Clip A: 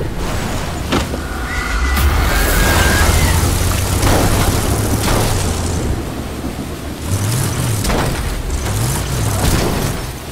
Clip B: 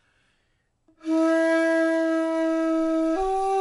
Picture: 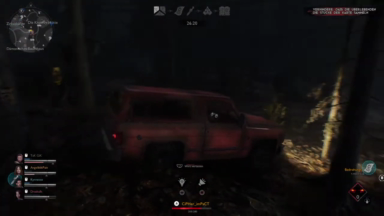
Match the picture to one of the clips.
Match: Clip A